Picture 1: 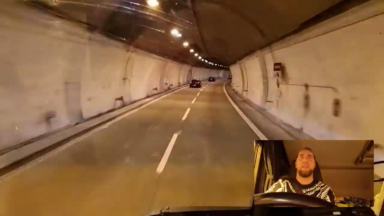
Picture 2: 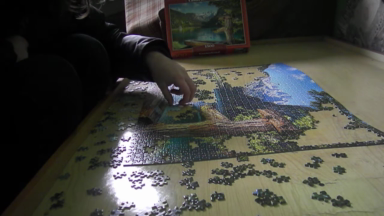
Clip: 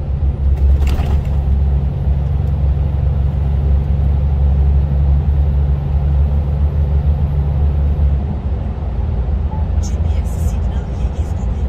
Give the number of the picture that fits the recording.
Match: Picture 1